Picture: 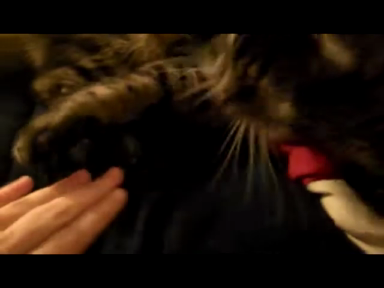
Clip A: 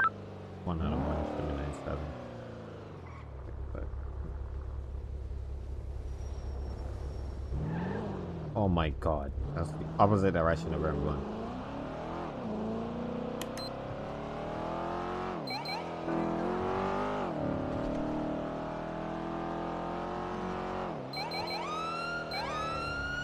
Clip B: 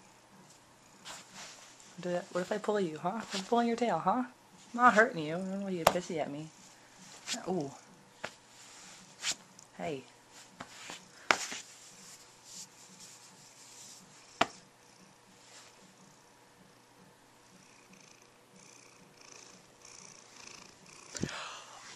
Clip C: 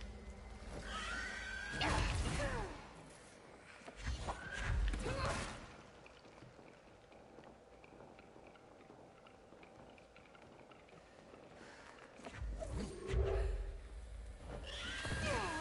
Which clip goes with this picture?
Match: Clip B